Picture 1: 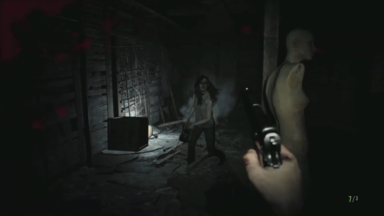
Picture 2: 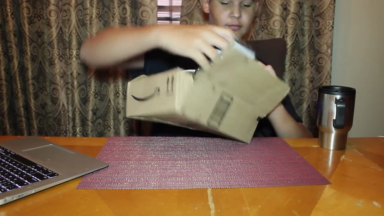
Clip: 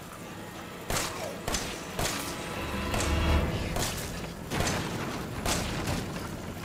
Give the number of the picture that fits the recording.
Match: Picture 1